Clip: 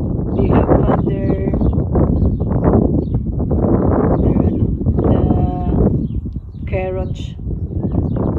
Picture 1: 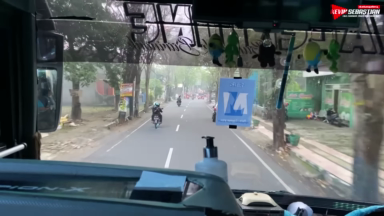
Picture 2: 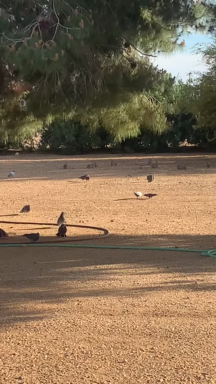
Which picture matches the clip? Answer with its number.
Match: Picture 2